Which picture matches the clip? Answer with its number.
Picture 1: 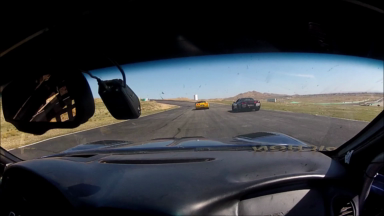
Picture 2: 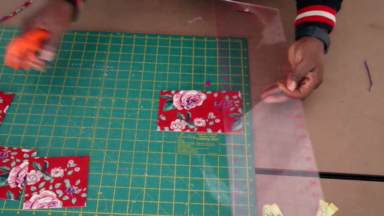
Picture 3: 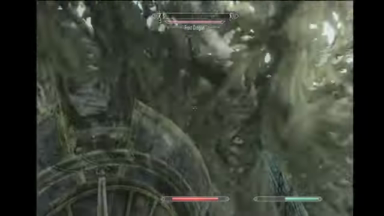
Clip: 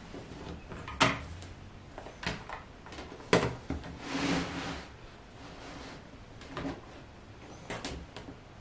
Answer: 2